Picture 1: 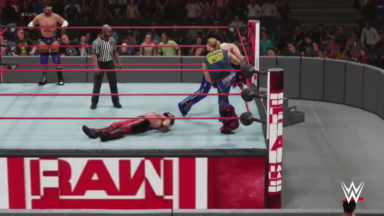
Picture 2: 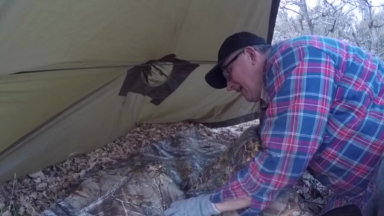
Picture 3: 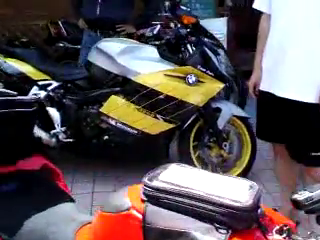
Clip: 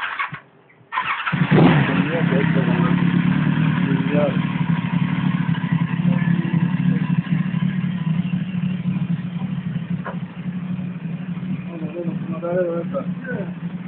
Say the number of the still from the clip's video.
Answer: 3